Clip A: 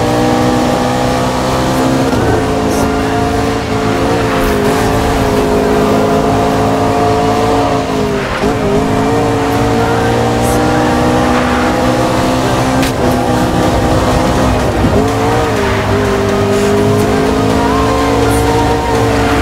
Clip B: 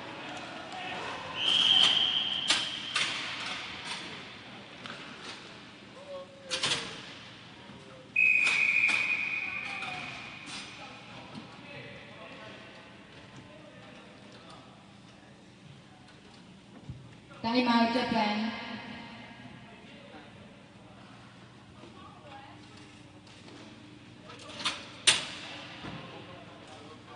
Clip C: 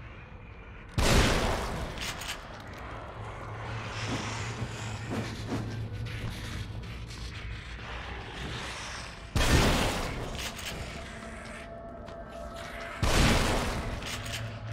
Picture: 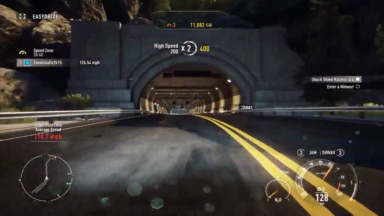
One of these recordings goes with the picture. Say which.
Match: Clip A